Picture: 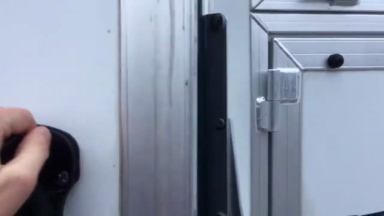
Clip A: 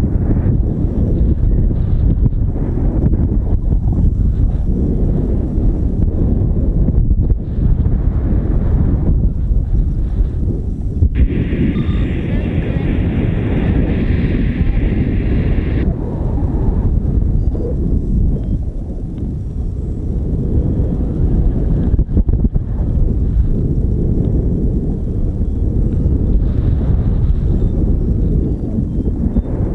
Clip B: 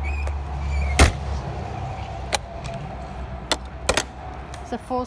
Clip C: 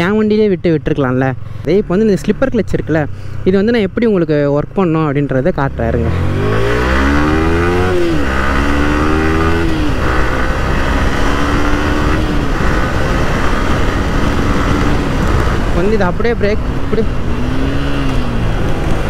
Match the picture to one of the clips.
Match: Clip B